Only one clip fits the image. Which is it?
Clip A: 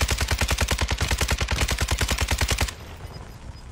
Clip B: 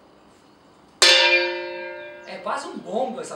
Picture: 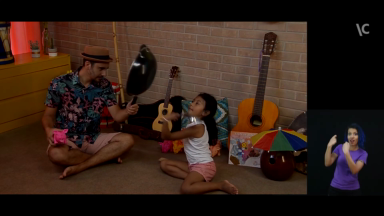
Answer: B